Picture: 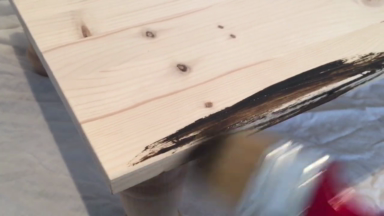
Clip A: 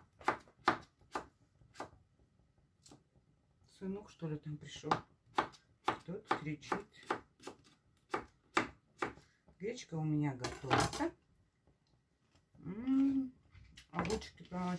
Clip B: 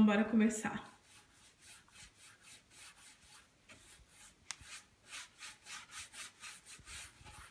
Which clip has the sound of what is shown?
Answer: B